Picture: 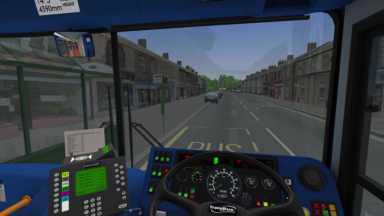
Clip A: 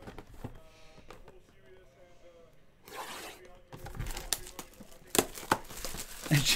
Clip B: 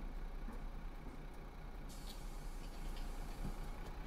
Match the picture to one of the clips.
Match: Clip B